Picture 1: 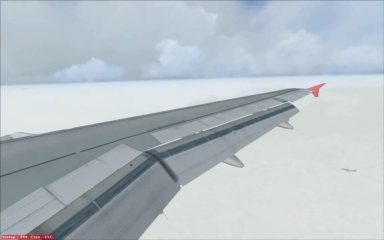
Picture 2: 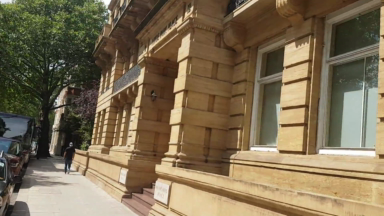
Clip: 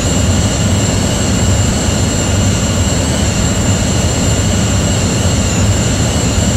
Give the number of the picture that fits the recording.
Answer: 1